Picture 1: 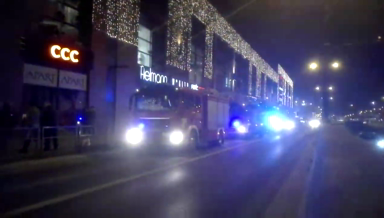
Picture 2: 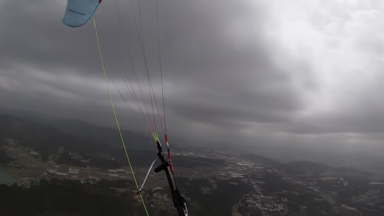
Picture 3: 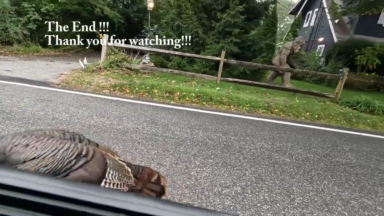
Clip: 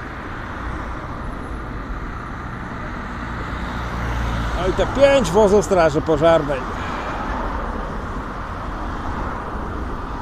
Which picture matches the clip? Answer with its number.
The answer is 1